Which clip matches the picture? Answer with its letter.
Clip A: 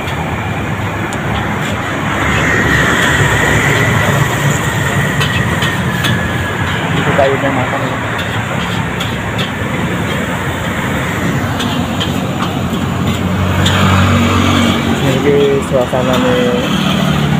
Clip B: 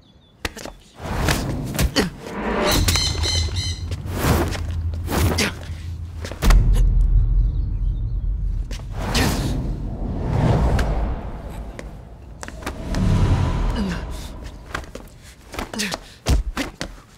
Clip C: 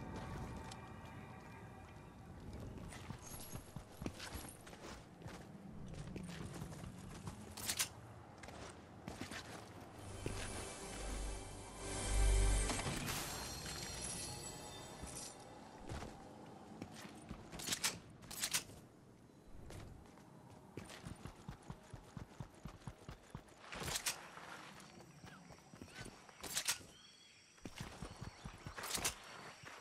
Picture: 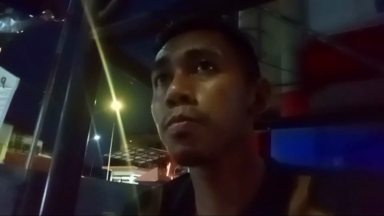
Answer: A